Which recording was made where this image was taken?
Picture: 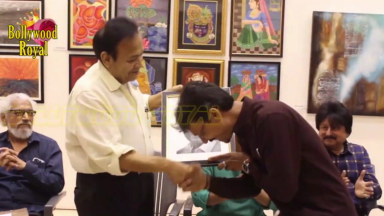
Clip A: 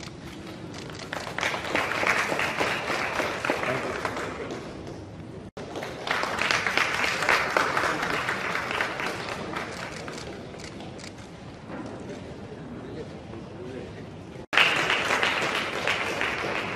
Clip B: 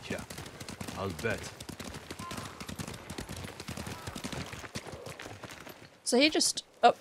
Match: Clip A